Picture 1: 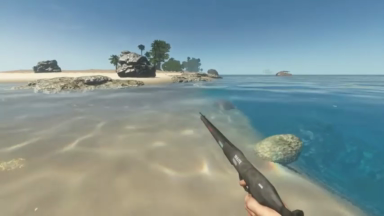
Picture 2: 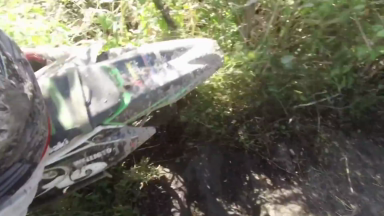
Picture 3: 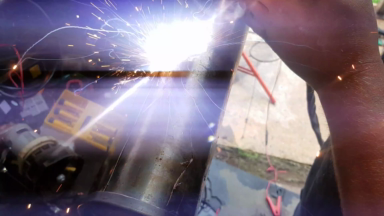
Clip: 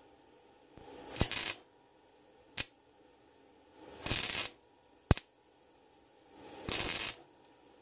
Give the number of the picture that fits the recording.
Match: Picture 3